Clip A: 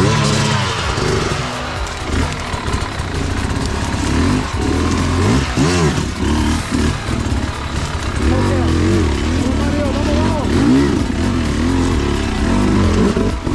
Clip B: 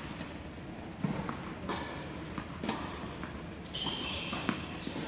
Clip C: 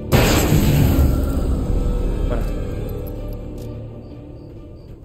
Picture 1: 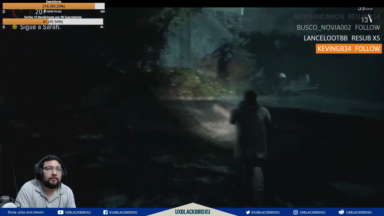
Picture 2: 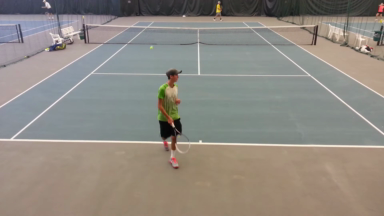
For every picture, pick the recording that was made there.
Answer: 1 C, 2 B